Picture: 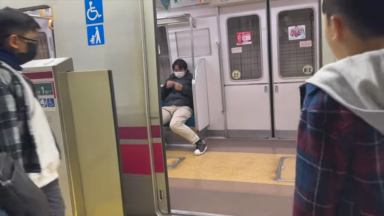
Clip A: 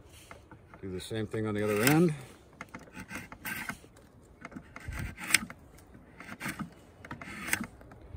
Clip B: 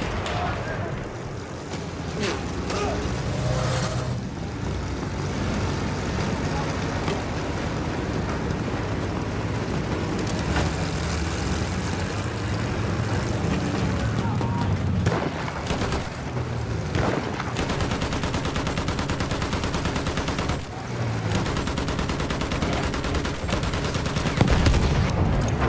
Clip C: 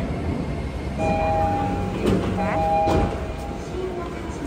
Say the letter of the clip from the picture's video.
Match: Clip C